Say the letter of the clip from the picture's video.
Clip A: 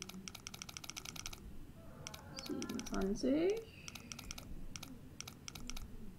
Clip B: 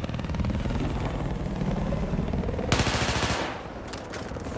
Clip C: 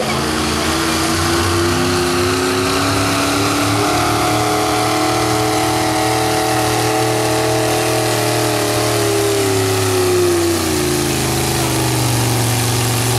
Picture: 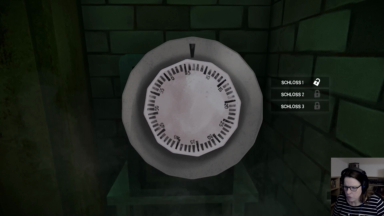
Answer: A